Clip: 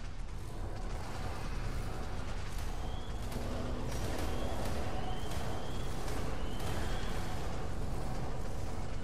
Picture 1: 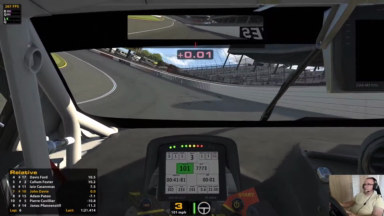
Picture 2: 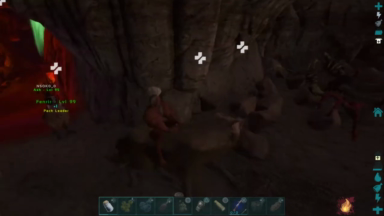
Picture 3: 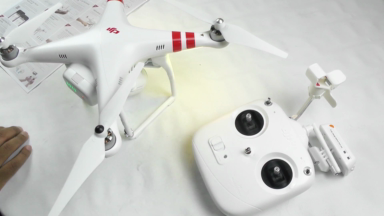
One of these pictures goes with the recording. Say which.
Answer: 2